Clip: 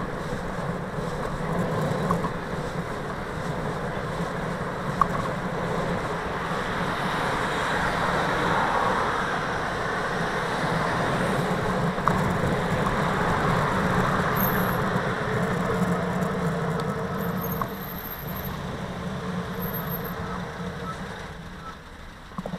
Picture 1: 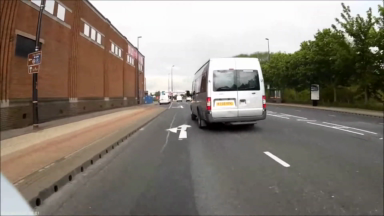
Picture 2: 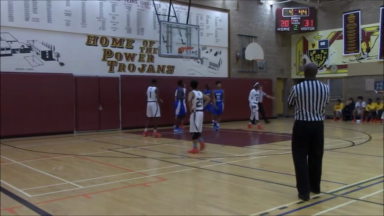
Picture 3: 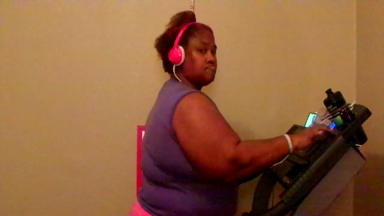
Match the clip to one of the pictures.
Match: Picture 1